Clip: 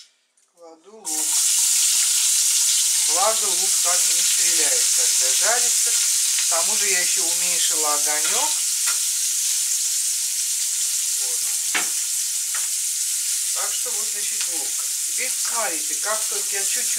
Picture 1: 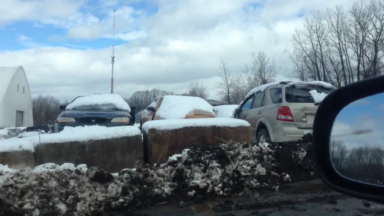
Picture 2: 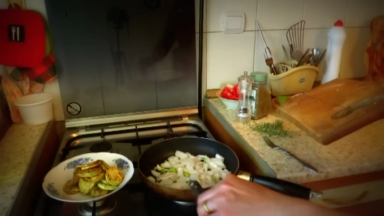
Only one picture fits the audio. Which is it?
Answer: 2